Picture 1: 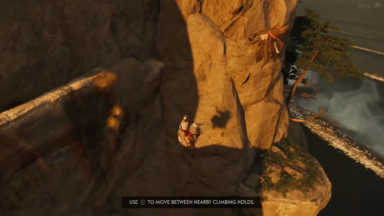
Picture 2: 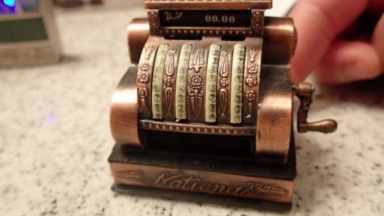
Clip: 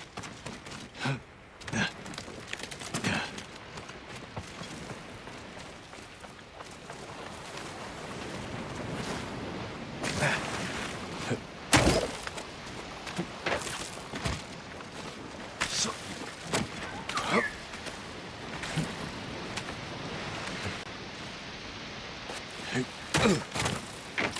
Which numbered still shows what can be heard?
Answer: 1